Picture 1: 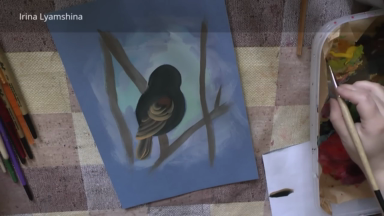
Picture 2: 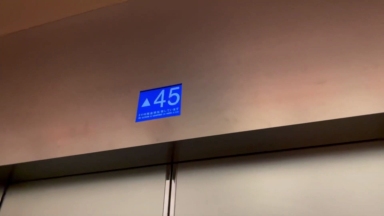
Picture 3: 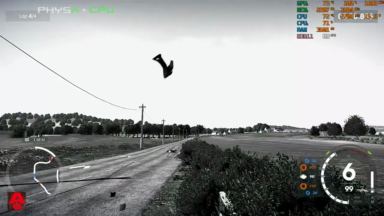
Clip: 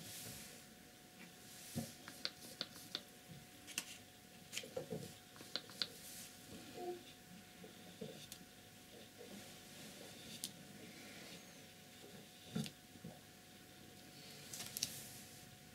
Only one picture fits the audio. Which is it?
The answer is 1